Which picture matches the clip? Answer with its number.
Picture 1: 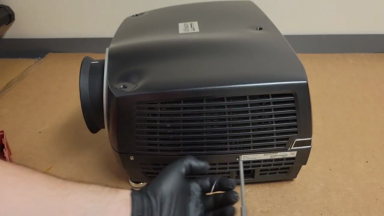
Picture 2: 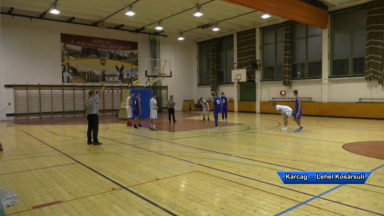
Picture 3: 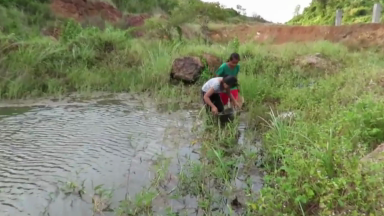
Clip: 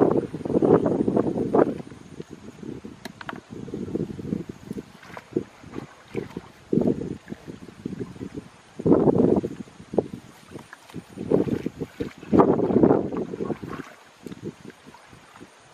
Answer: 3